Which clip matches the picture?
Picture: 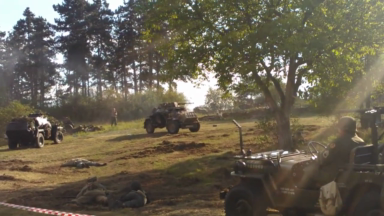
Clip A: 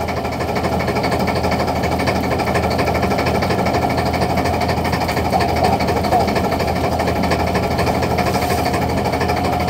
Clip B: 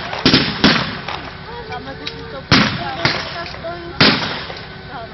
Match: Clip B